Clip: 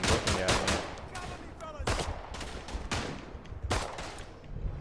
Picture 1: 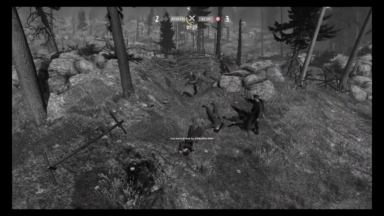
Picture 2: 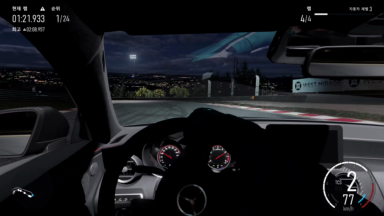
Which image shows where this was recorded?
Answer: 1